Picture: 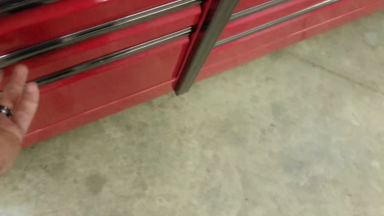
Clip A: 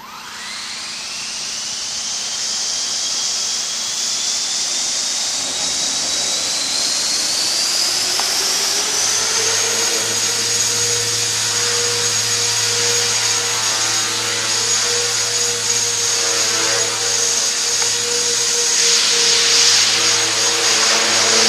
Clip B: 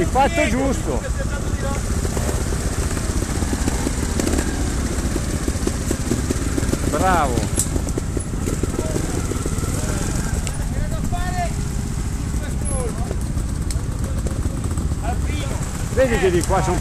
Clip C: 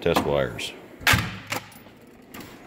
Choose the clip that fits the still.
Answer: C